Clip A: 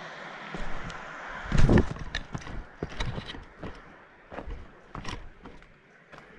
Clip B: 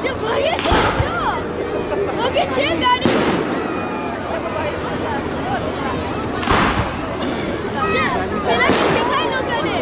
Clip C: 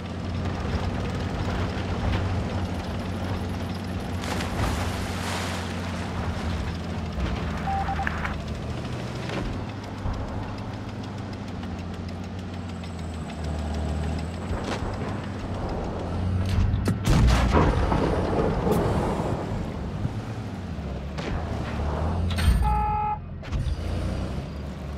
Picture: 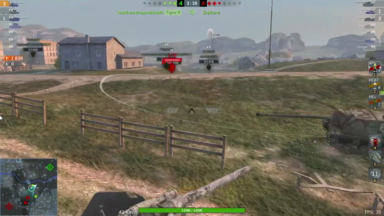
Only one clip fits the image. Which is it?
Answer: C